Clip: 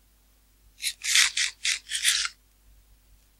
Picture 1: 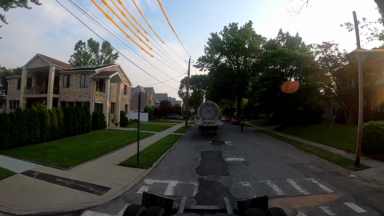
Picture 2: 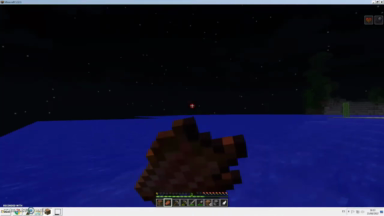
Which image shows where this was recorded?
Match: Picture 2